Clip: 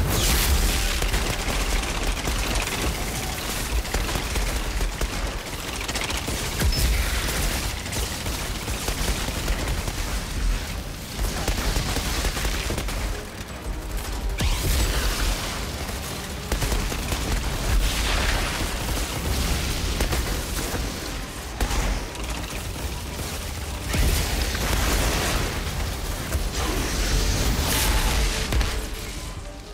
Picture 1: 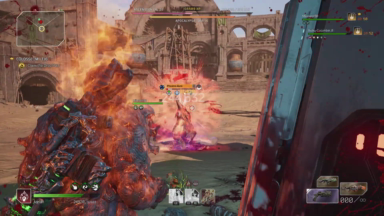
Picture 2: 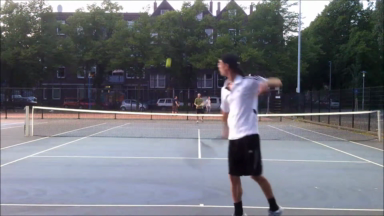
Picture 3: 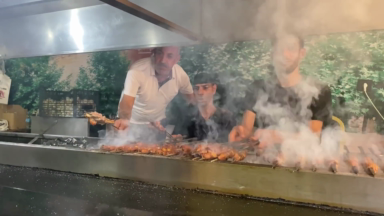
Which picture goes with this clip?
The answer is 1